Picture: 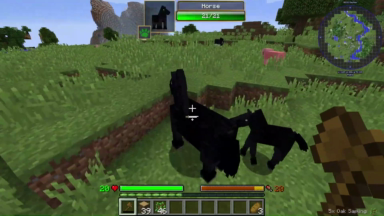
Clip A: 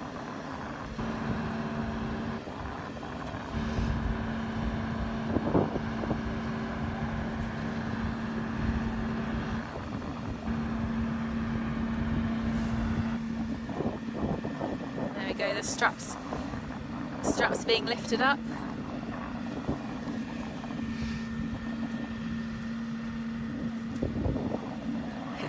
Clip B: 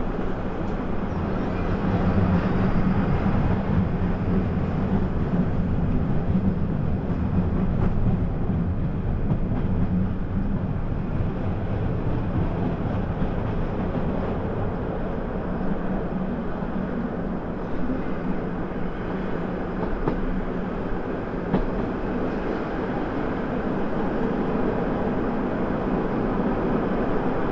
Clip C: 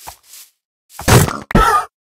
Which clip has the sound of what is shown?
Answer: C